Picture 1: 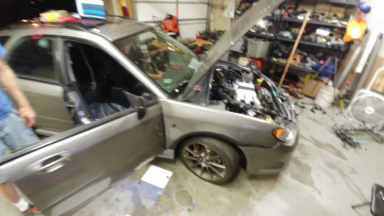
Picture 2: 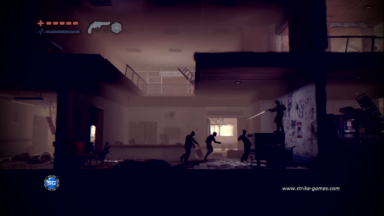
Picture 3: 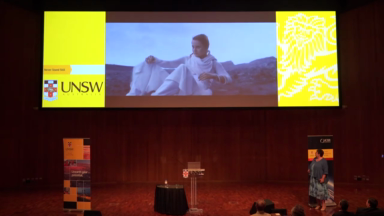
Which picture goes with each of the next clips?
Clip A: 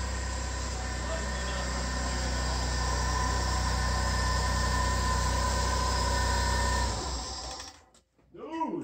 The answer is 1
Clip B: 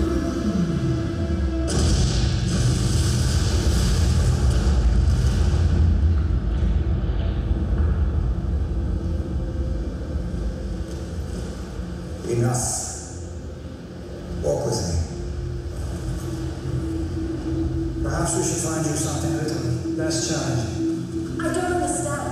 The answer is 3